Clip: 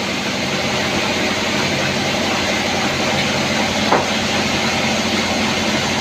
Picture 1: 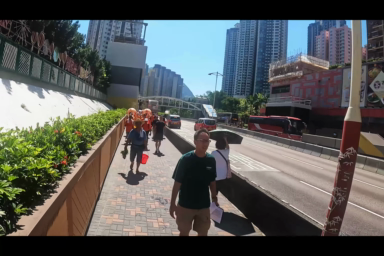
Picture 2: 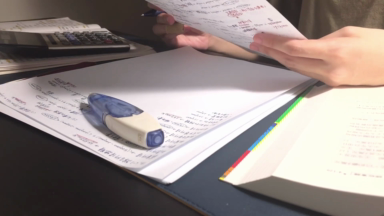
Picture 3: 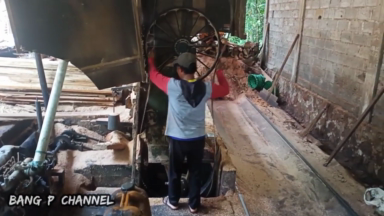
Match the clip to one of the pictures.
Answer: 3